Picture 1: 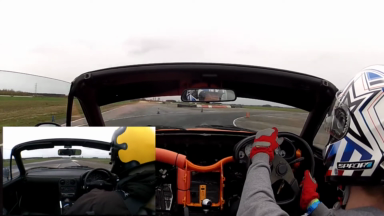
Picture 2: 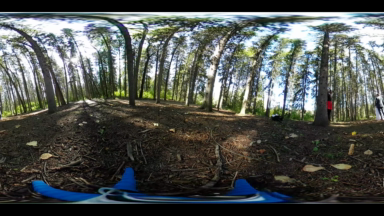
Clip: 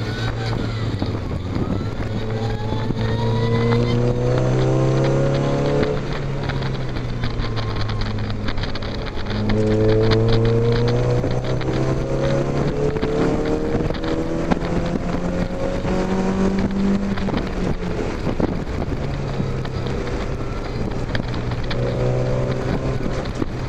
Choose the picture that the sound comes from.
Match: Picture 1